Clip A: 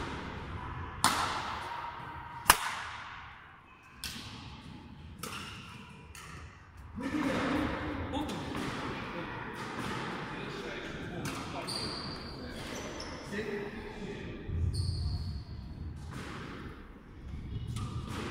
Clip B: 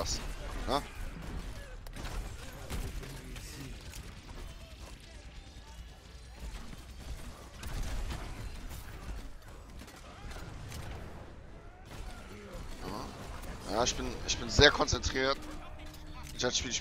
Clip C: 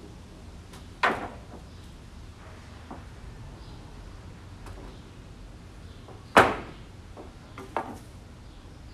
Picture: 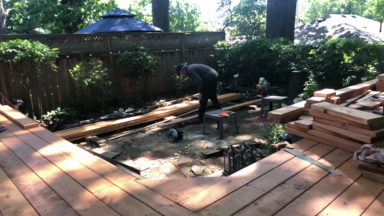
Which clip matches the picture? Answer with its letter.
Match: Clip C